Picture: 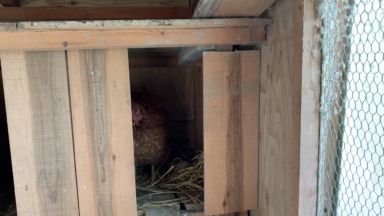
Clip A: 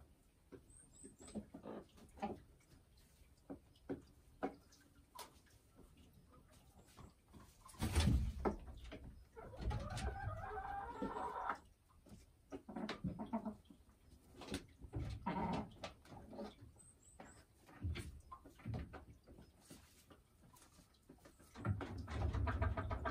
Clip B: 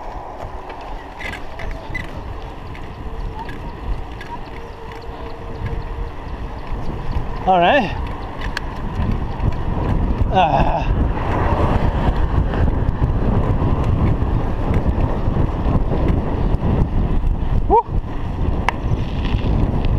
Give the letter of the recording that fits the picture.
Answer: A